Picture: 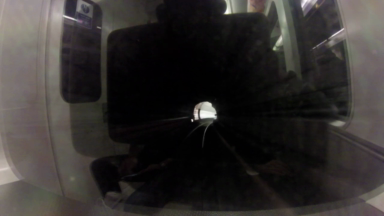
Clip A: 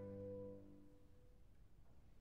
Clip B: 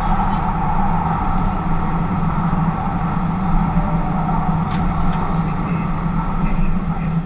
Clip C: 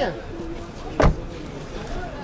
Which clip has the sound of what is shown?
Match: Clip B